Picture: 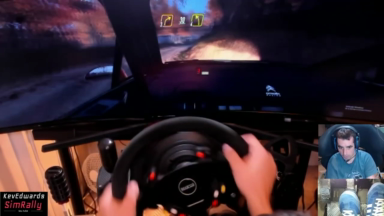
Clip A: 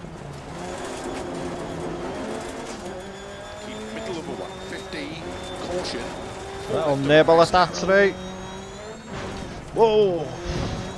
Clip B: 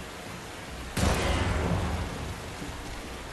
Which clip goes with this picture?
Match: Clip A